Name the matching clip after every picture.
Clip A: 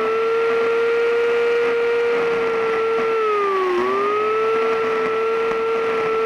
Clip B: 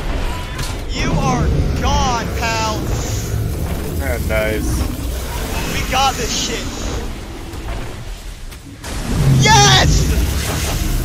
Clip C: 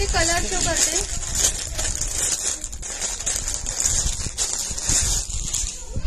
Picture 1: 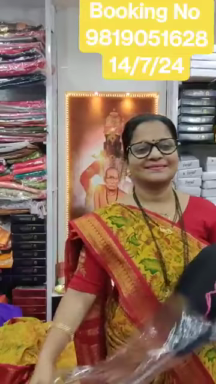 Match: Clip C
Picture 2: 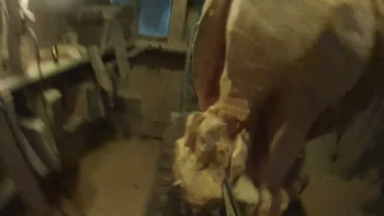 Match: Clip A